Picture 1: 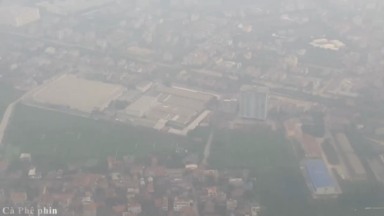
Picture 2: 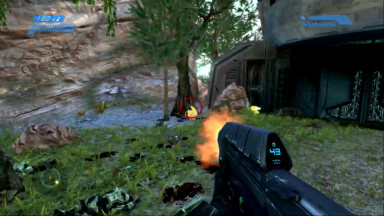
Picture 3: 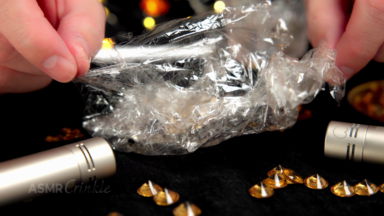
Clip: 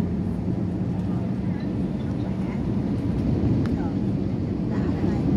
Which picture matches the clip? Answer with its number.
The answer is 1